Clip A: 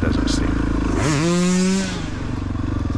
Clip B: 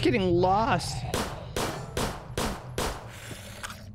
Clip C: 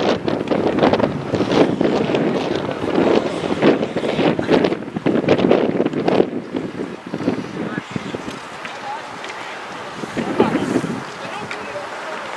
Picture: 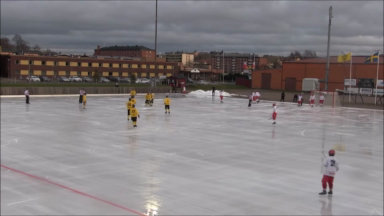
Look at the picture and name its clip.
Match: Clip C